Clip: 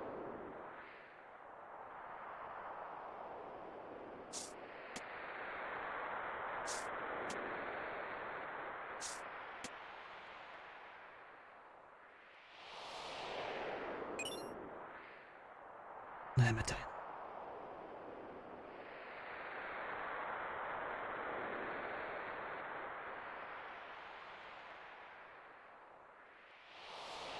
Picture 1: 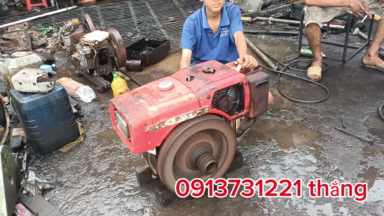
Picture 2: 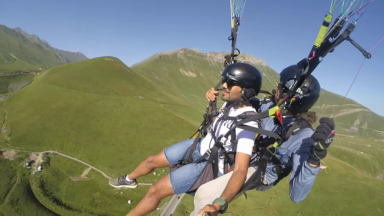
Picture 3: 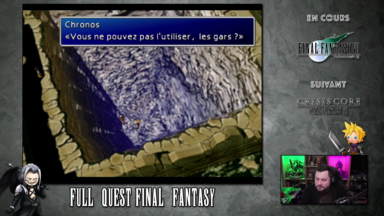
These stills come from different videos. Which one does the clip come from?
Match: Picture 3